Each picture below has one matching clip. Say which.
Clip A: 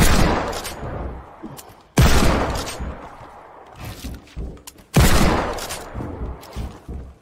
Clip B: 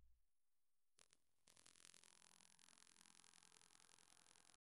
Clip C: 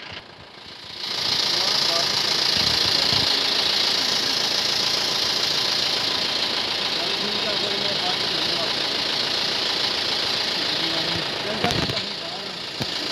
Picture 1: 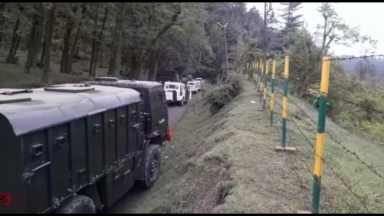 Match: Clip C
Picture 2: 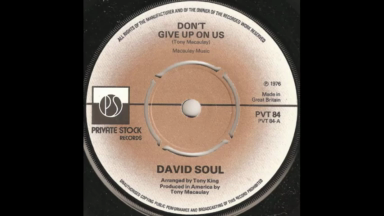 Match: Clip B